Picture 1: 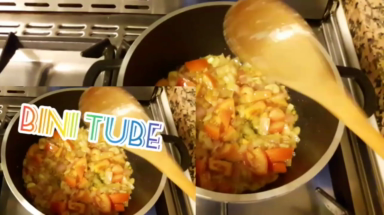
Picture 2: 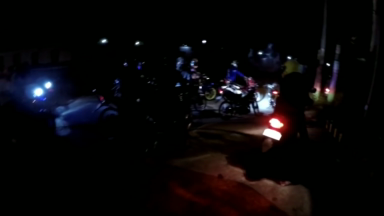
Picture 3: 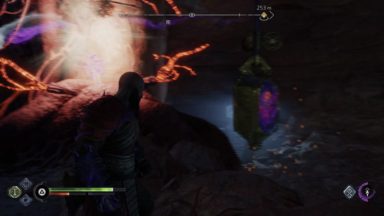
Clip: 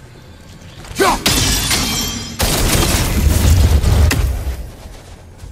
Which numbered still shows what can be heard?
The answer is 3